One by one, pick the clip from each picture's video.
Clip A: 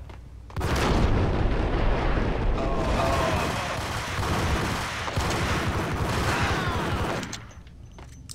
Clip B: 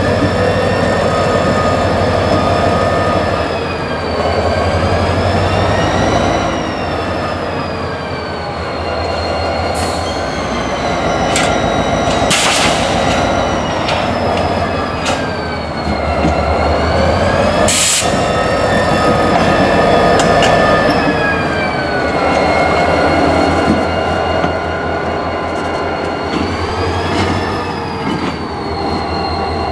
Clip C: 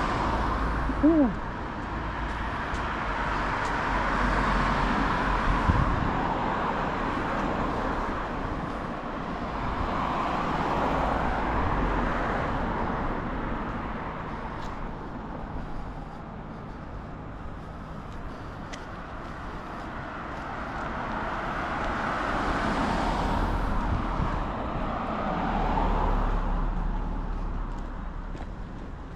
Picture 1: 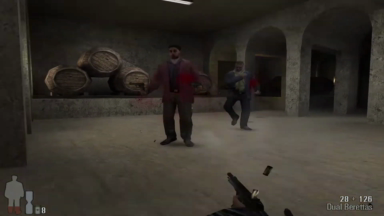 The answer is A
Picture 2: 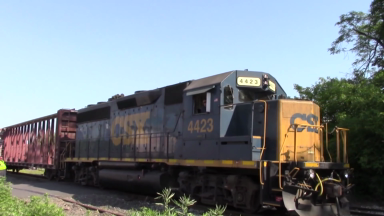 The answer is B